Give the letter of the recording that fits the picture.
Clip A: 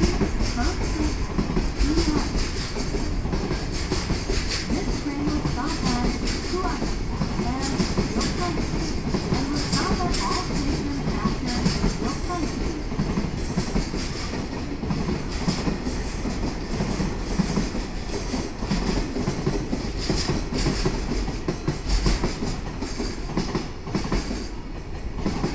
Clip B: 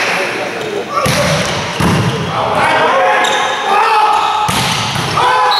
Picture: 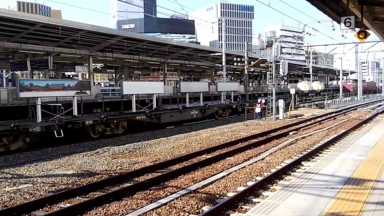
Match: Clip A